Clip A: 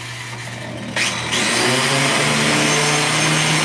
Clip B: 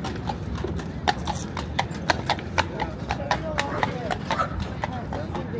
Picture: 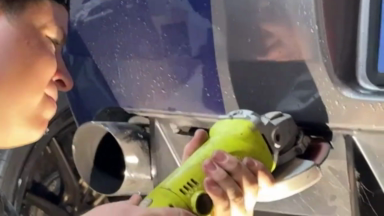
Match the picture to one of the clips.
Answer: A